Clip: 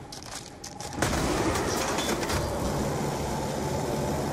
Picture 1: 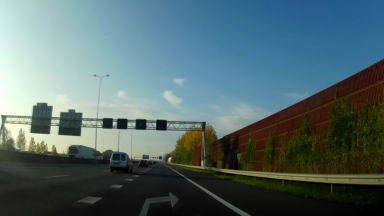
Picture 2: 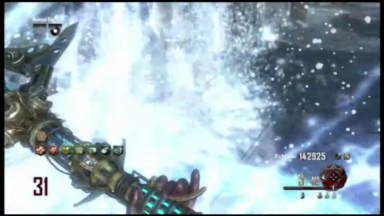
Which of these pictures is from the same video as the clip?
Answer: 2